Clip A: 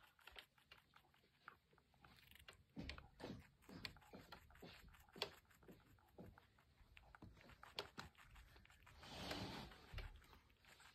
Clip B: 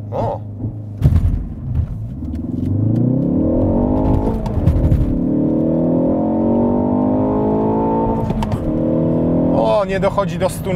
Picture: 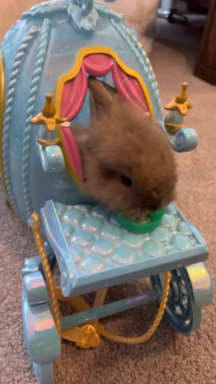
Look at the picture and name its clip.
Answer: A